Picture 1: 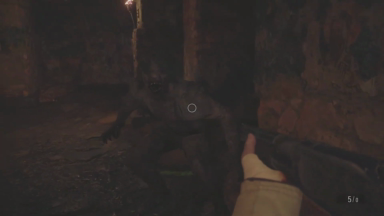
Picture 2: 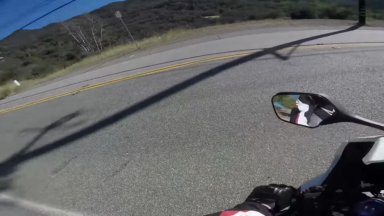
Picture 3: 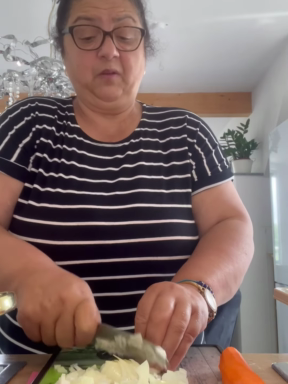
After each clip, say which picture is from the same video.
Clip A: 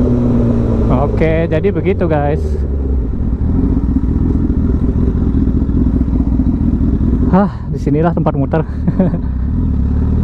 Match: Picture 2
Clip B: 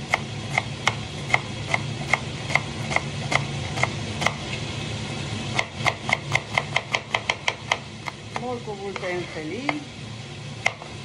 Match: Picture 3